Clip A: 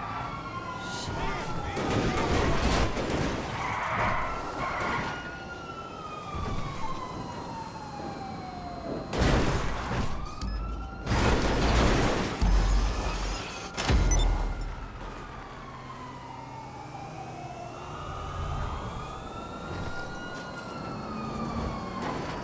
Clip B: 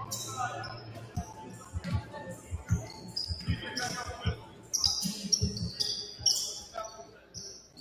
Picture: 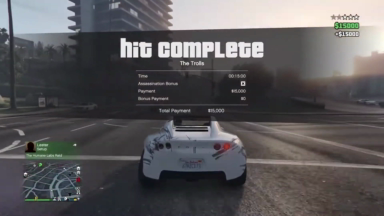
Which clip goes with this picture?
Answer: A